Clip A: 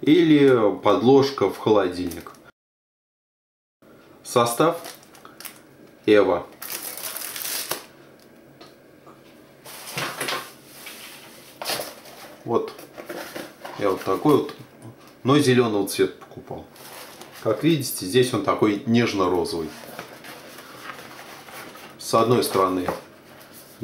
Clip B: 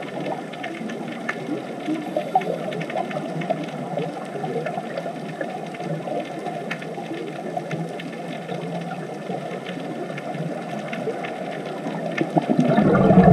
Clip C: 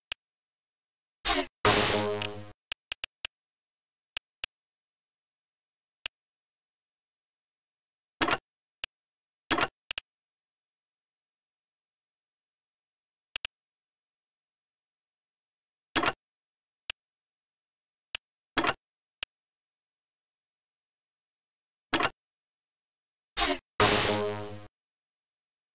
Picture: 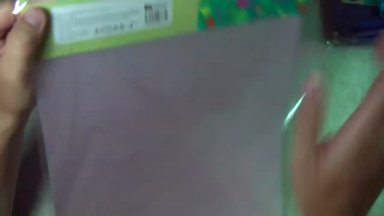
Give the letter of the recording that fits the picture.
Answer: A